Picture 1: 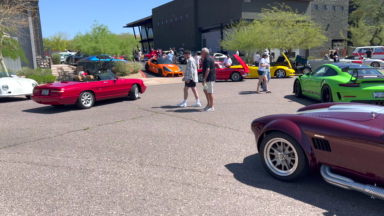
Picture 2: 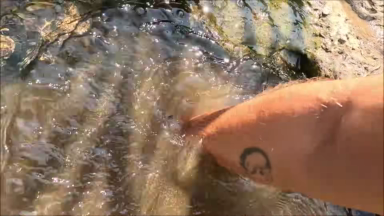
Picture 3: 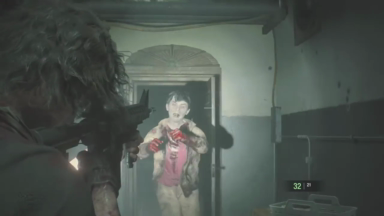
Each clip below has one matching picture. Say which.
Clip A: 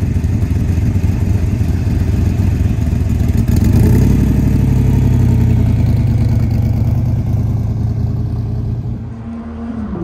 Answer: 1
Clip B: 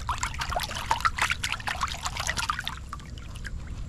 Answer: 2